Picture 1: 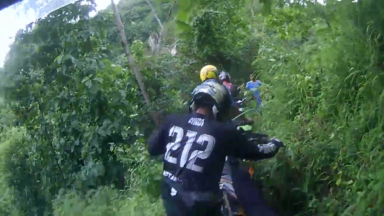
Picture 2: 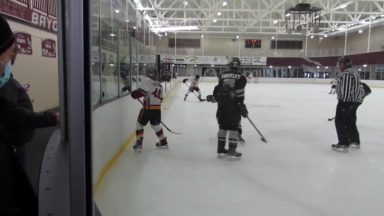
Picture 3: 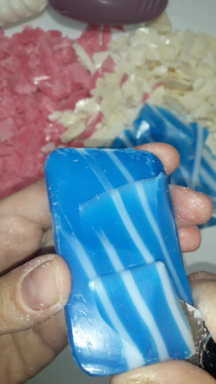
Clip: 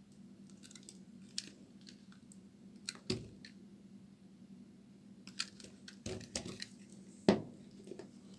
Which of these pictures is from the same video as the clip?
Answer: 3